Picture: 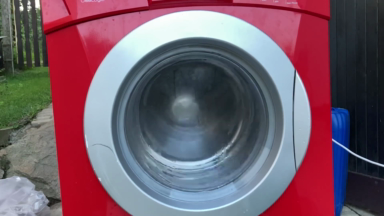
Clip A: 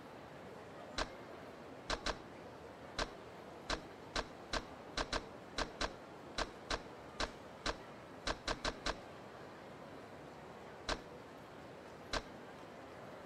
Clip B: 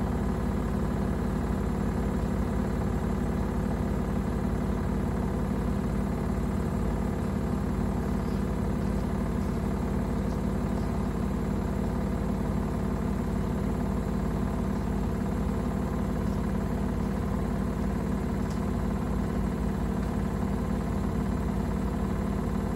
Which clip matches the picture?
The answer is B